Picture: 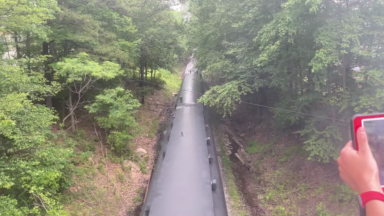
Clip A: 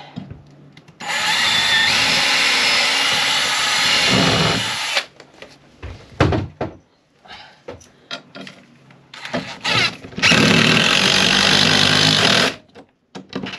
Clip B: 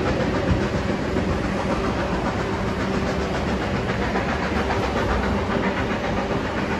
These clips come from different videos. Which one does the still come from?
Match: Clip B